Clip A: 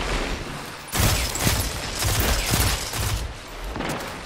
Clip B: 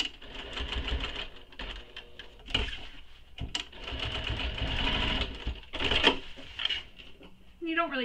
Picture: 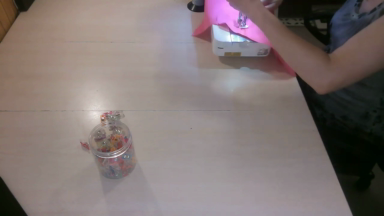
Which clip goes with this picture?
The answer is B